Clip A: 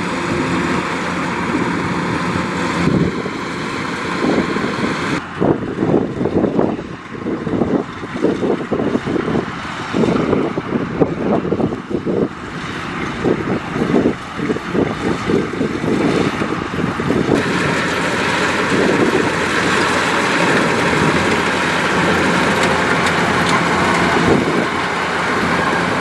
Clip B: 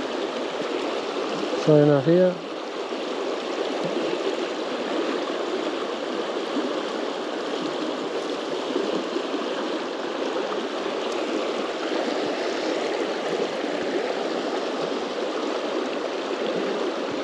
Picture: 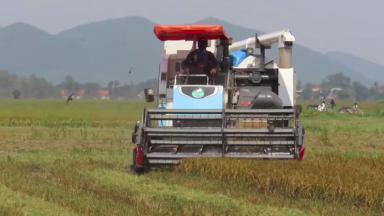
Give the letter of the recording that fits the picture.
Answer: A